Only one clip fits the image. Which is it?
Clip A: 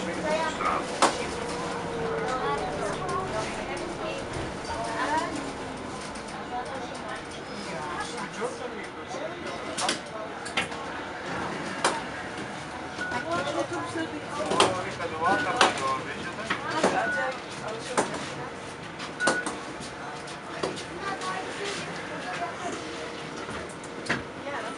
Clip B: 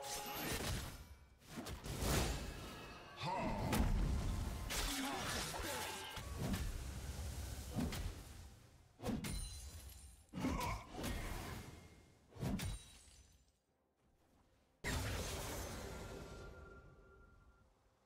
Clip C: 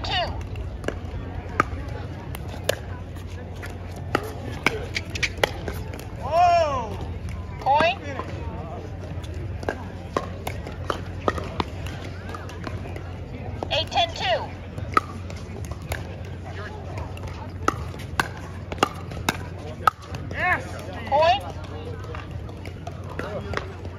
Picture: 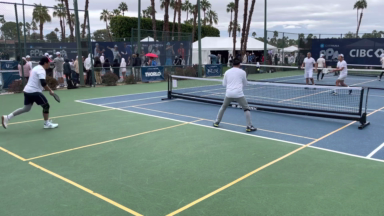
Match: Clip C